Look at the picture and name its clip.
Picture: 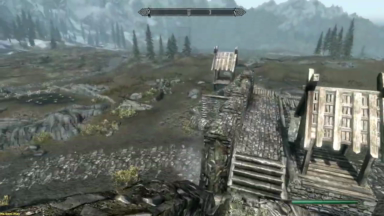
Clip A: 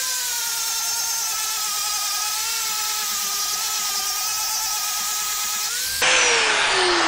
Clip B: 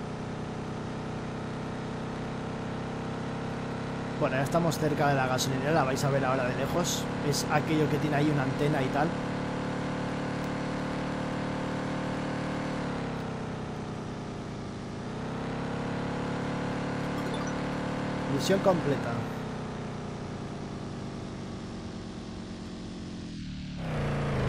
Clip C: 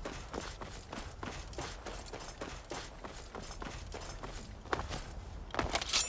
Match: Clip C